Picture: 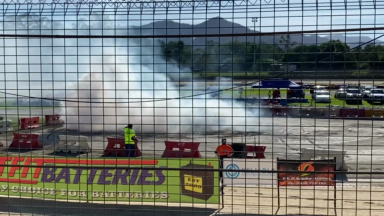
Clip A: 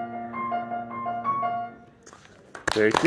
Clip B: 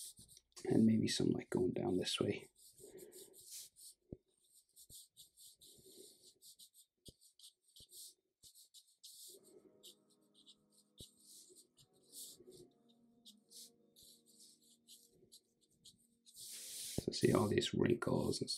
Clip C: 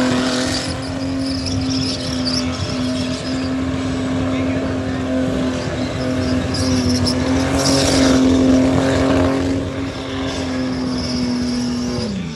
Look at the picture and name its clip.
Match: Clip C